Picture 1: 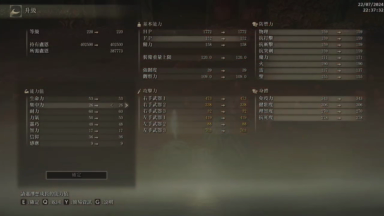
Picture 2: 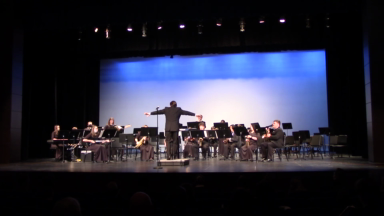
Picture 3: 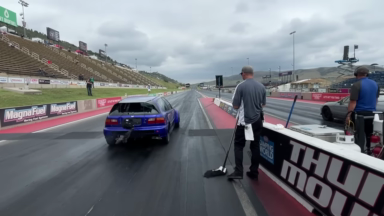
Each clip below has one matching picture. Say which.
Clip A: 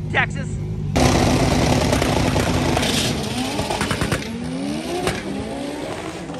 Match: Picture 3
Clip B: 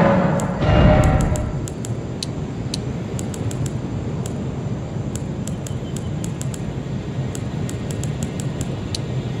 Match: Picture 1